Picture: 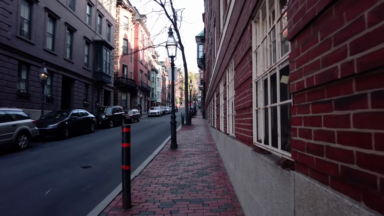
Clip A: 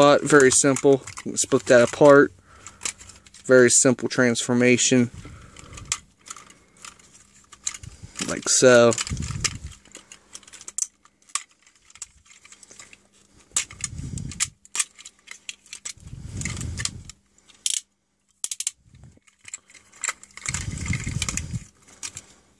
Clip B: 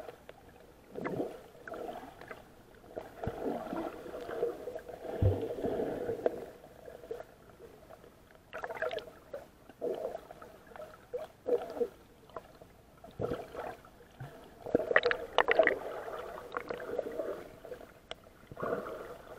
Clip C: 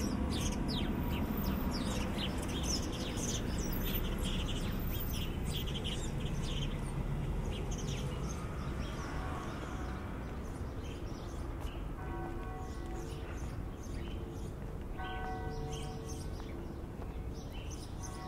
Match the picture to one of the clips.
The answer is C